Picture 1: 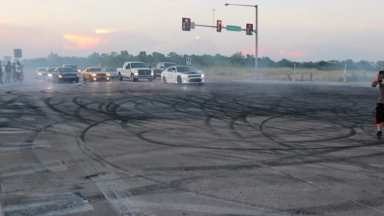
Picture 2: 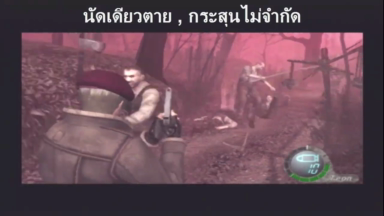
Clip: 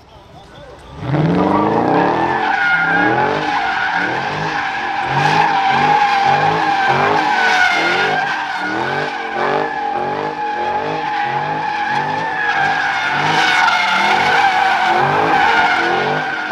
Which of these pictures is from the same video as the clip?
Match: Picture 1